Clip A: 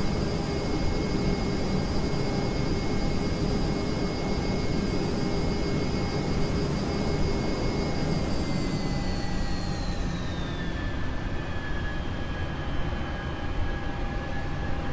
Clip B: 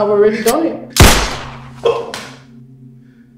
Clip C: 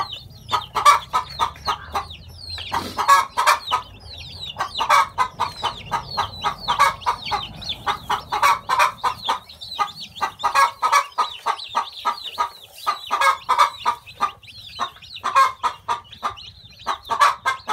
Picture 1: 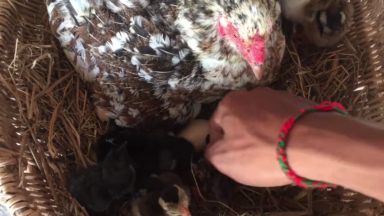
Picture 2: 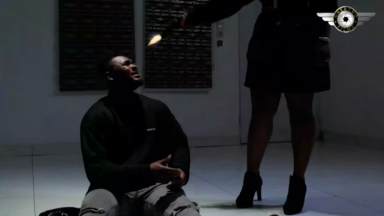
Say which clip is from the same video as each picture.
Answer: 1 C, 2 B